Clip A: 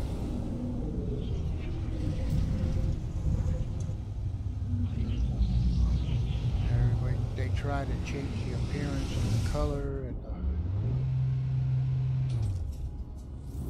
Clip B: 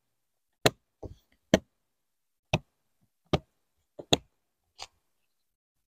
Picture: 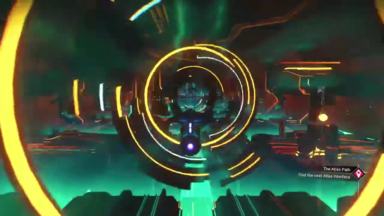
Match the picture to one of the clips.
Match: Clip A